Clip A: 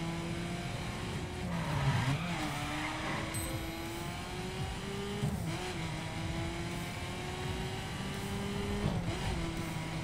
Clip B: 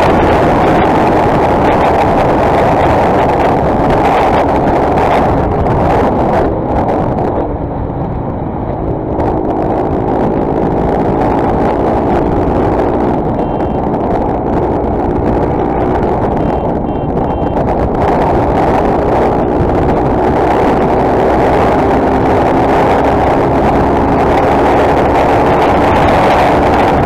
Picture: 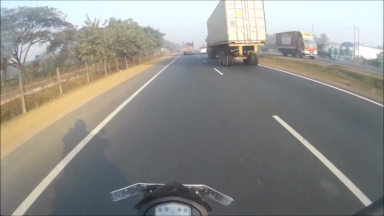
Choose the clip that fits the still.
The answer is B